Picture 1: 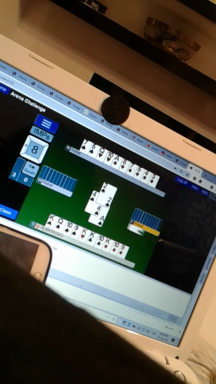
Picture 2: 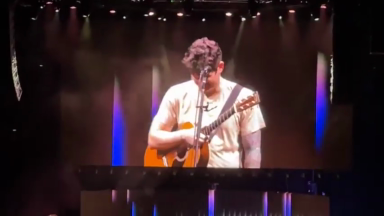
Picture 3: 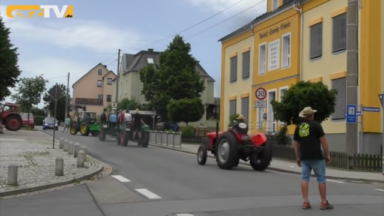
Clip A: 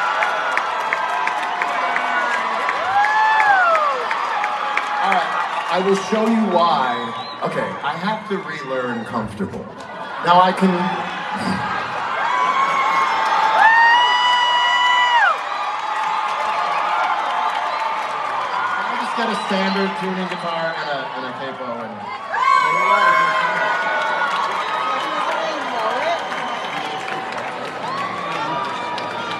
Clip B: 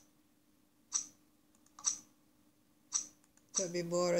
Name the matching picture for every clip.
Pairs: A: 2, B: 1